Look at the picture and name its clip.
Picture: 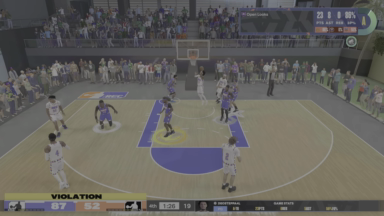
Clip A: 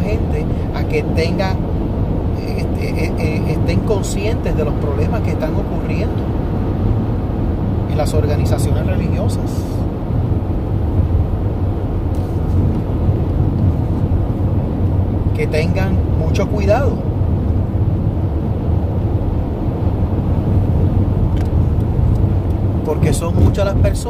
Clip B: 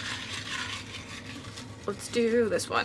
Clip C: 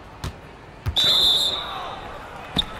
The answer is C